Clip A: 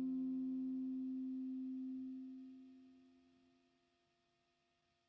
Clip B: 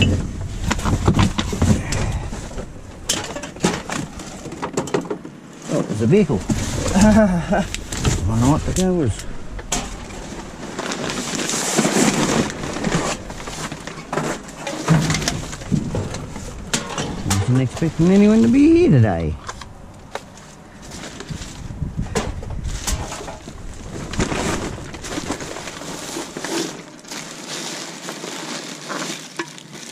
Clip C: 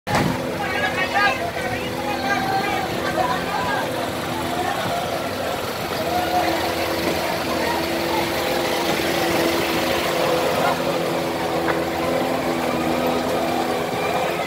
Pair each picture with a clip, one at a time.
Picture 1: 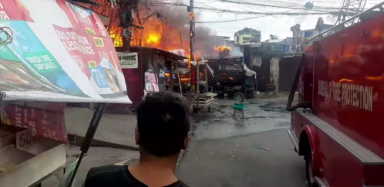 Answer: C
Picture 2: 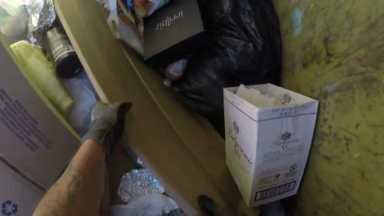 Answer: B